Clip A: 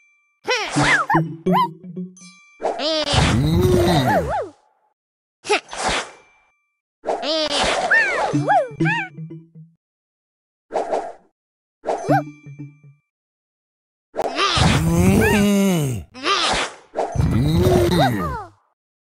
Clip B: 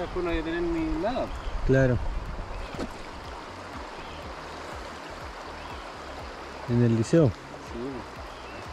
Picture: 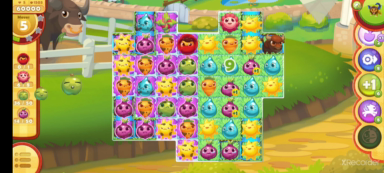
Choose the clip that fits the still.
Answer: A